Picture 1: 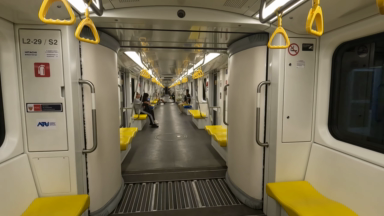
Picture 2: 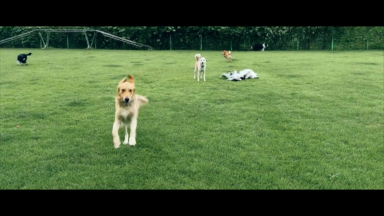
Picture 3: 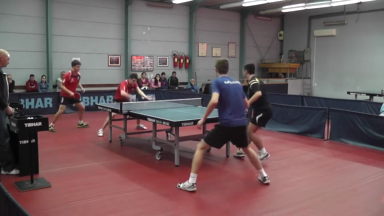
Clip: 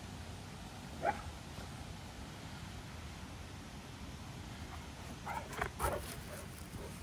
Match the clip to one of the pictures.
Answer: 2